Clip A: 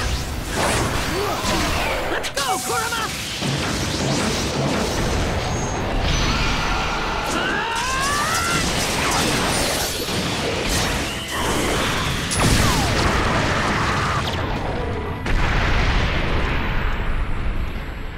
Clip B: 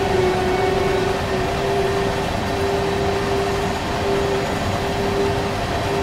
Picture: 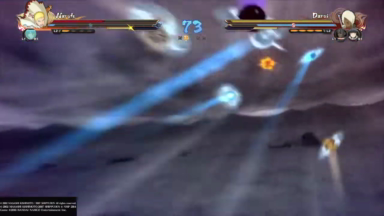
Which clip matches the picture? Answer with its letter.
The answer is A